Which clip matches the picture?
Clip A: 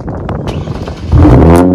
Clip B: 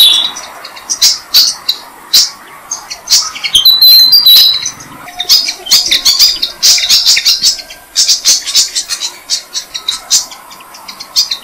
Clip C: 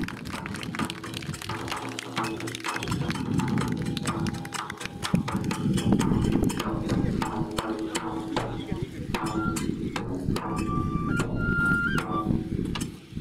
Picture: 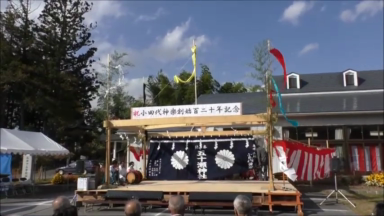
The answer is C